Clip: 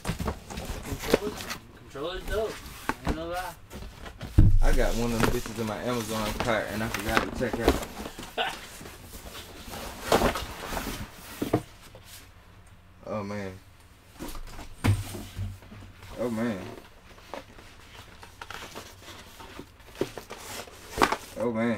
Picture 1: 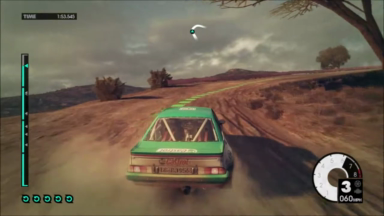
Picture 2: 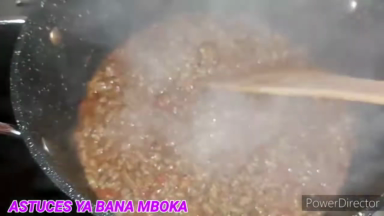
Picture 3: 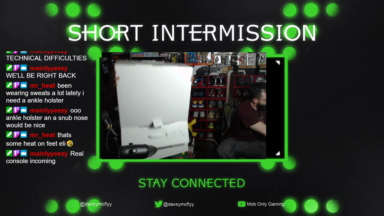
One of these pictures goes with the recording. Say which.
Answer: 3